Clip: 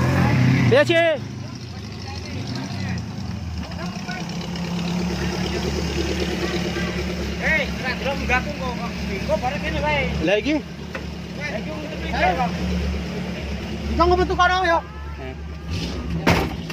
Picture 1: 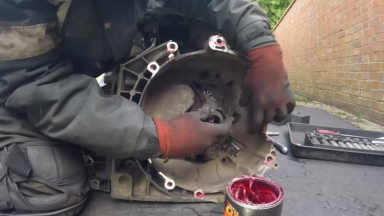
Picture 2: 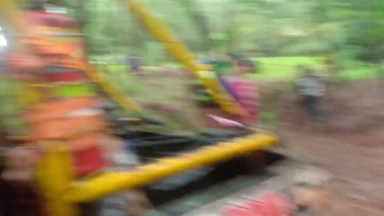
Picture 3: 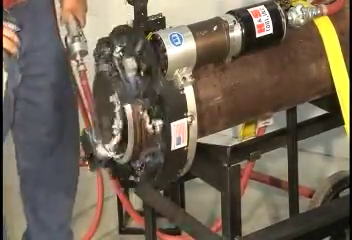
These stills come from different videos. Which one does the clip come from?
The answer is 2